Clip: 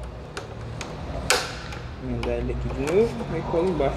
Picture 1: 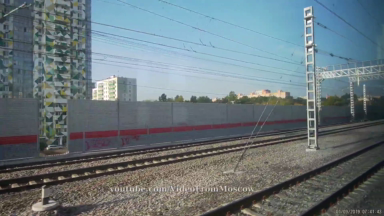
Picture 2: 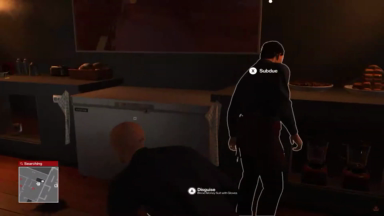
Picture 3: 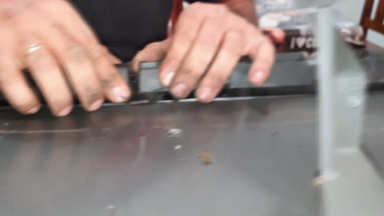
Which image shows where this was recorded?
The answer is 3